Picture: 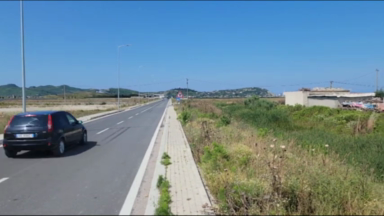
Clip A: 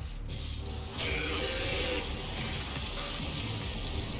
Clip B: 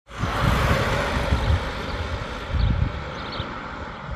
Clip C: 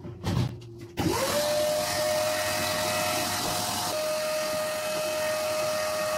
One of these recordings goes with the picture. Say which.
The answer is B